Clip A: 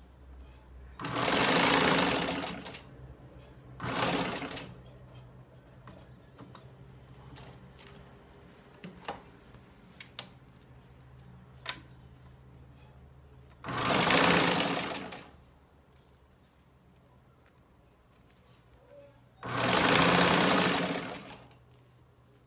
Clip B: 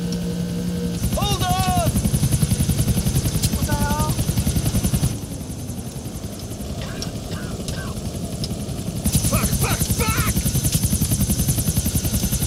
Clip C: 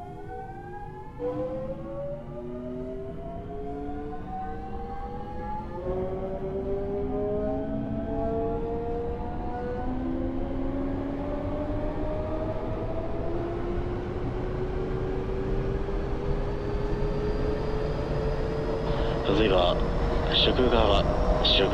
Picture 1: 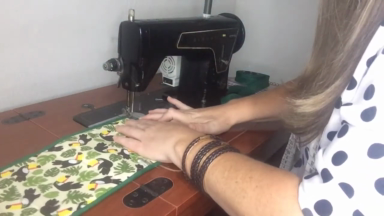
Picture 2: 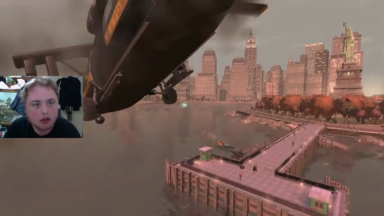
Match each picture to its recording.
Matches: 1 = A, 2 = B